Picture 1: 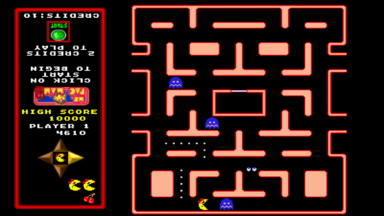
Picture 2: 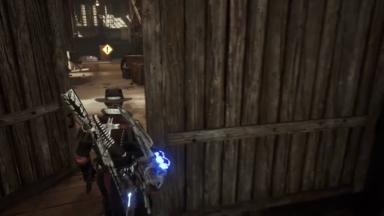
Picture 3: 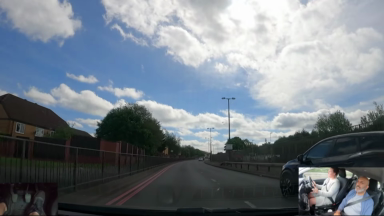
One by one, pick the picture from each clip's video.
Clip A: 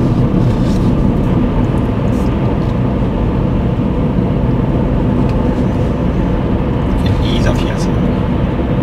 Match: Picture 3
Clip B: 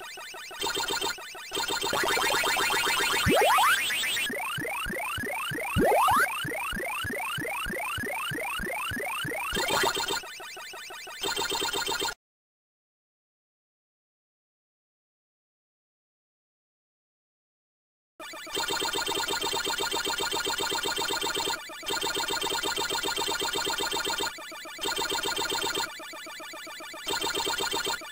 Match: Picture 1